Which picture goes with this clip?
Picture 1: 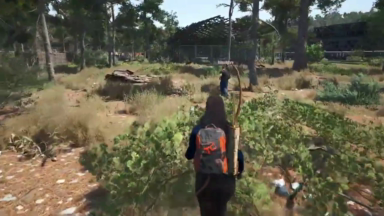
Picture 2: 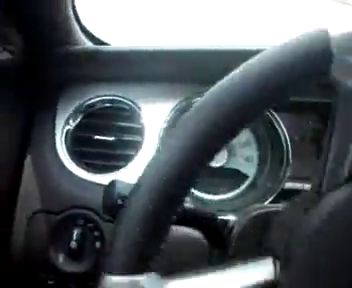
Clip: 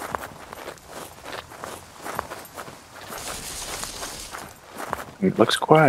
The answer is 1